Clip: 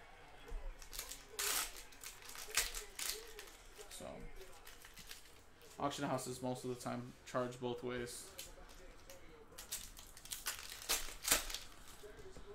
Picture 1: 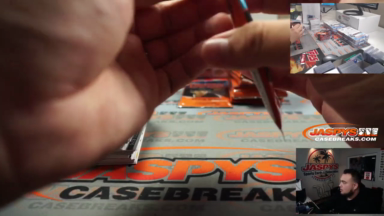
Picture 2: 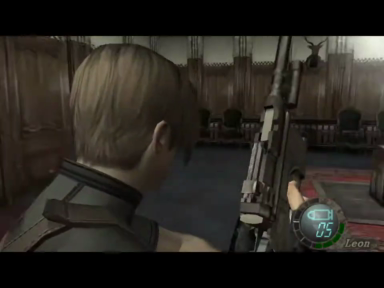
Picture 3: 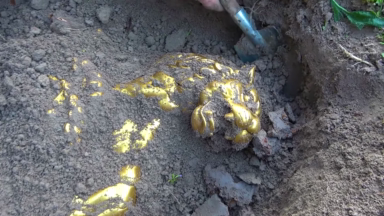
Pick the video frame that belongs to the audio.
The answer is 1